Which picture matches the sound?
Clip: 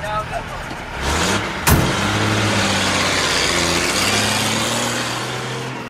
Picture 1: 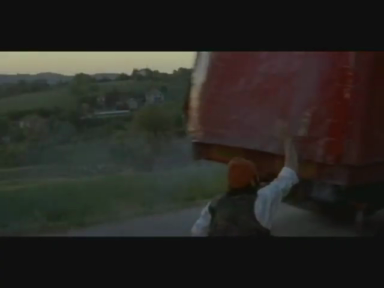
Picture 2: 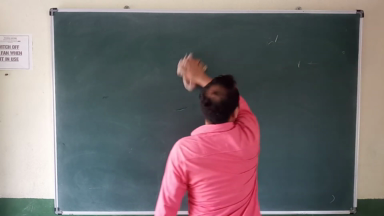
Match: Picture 1